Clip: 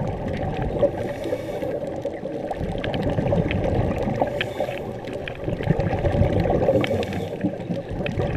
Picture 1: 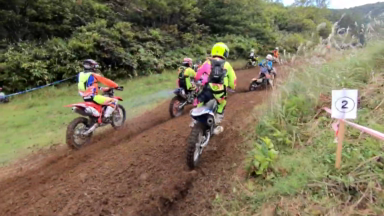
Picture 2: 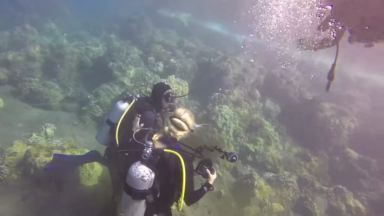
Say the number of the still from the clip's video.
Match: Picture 2